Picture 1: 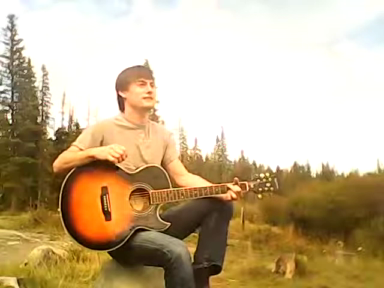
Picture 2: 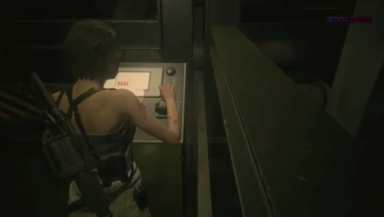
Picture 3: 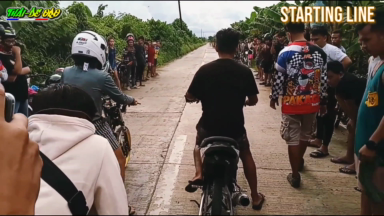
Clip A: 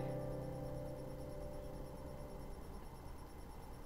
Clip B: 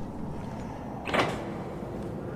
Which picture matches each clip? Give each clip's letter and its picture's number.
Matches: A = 1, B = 2